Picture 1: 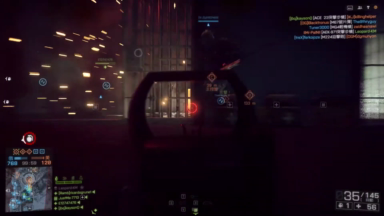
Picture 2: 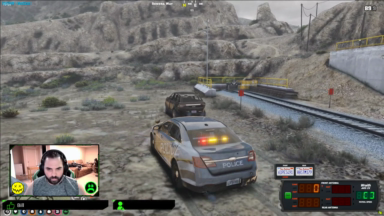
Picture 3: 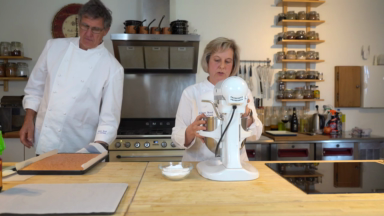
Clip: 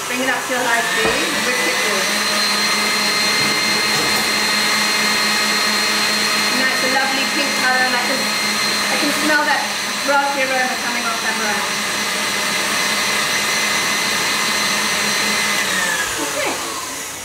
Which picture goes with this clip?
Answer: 3